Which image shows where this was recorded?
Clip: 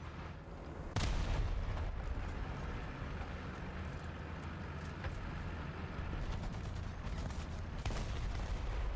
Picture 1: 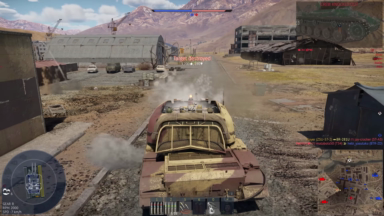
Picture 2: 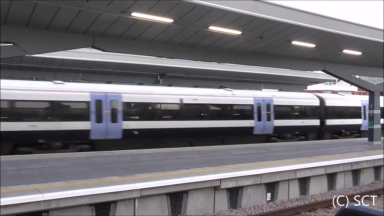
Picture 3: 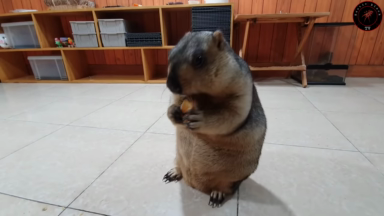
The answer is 1